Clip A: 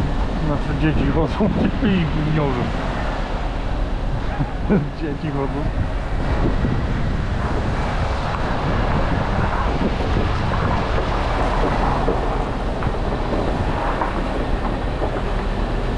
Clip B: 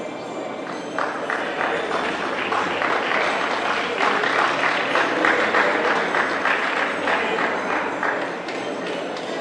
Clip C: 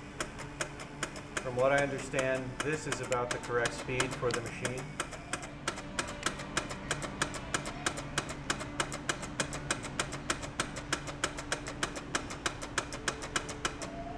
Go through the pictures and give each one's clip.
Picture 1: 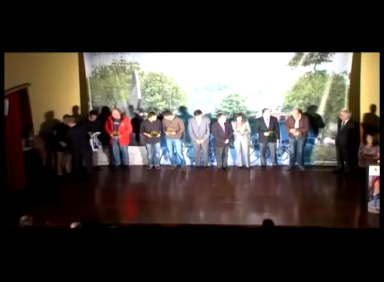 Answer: B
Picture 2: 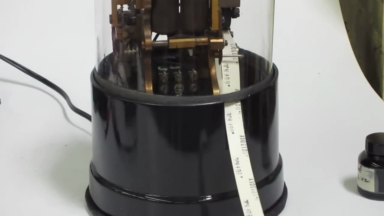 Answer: C